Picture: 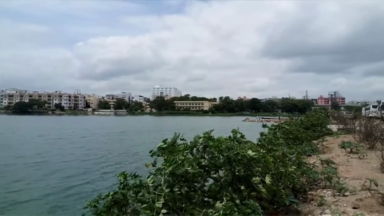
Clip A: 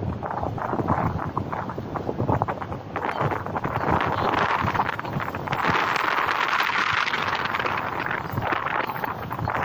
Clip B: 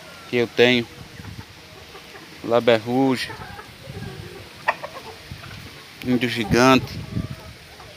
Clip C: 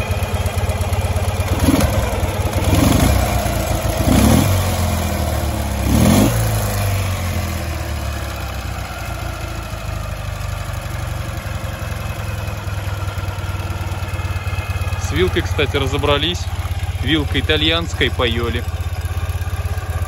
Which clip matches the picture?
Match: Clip A